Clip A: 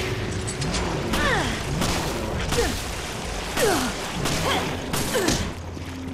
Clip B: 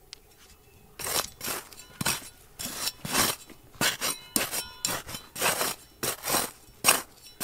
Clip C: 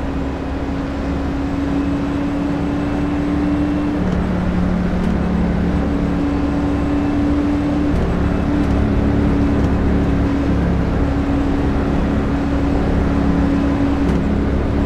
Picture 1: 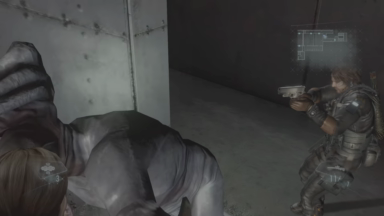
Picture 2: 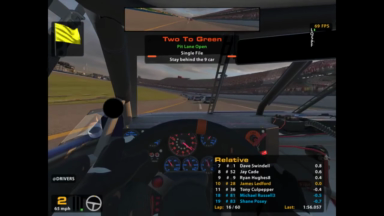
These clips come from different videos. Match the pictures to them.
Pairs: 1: A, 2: C